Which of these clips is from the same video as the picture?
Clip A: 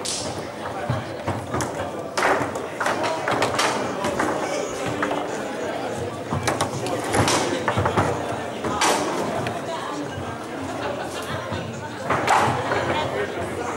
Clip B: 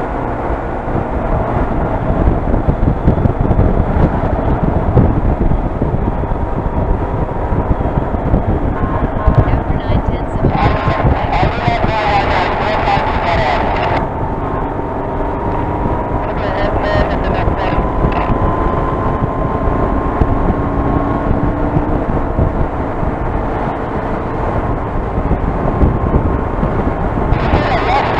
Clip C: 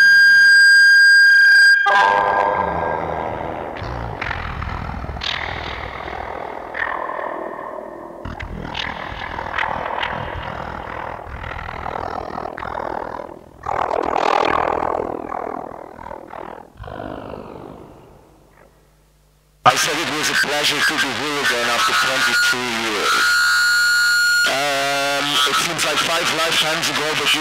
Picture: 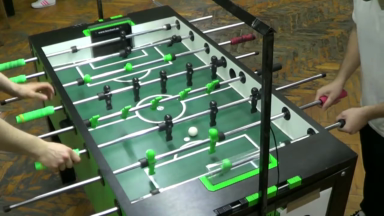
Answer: A